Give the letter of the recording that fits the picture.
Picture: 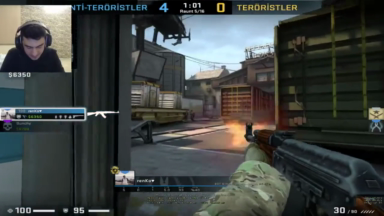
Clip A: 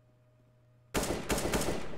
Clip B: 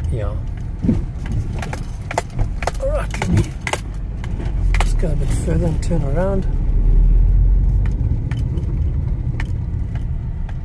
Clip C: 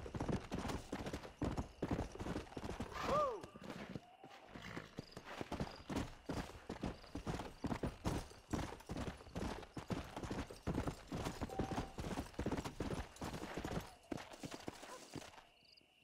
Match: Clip A